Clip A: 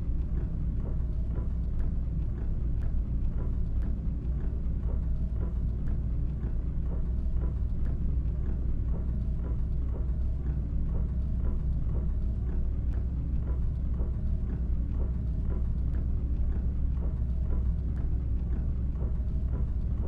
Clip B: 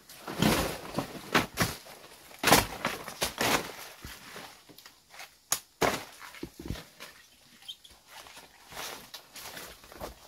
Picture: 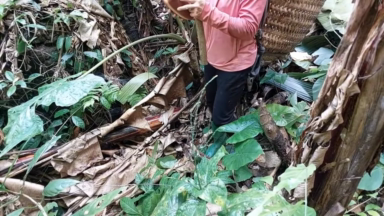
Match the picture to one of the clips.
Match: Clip B